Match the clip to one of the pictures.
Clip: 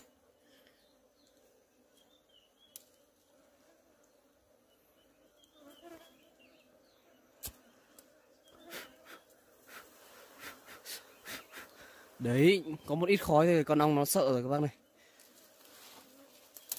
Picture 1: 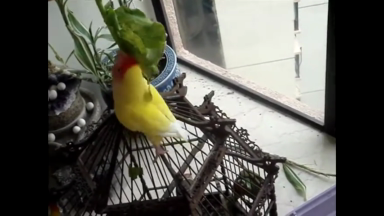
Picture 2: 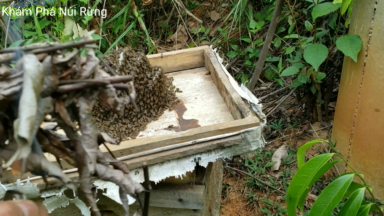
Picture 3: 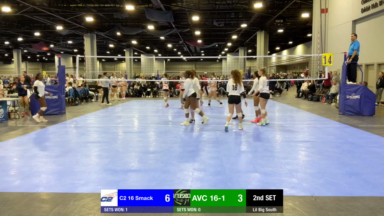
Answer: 2